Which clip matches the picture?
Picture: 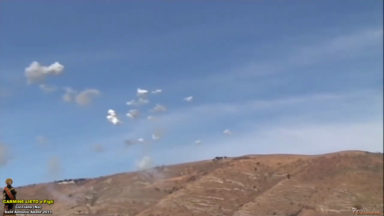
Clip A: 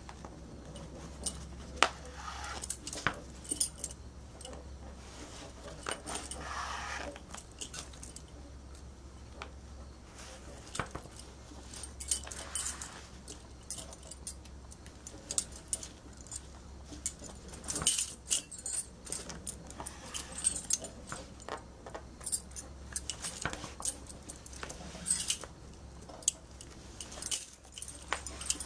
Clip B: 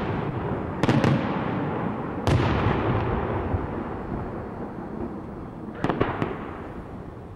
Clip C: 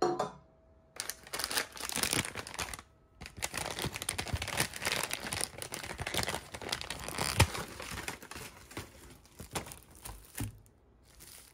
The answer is B